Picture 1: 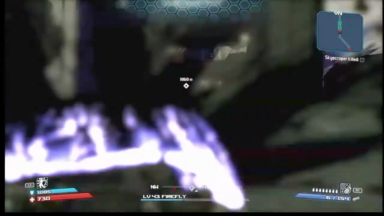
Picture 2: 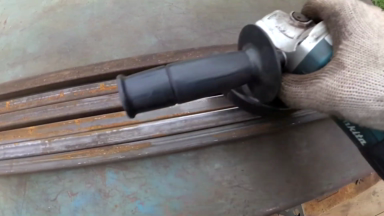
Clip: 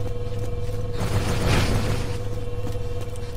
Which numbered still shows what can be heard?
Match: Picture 1